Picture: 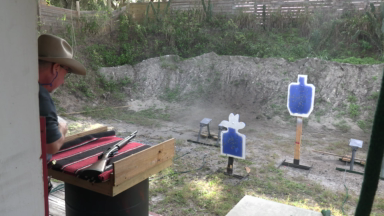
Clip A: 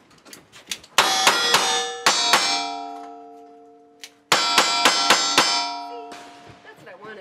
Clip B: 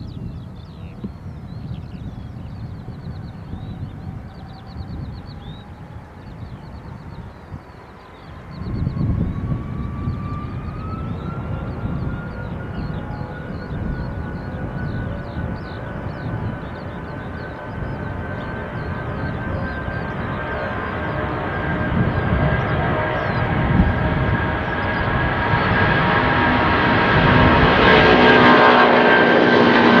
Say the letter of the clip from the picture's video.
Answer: A